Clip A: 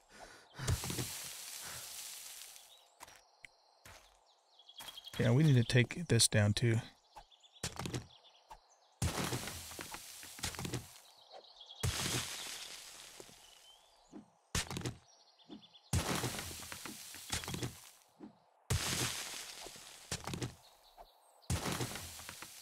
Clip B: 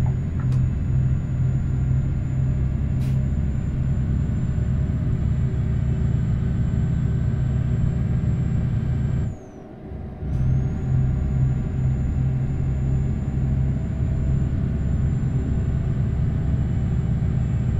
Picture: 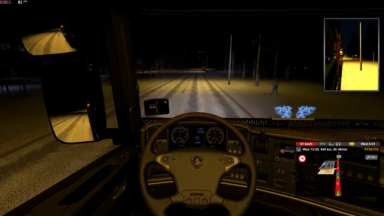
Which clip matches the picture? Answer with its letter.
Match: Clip B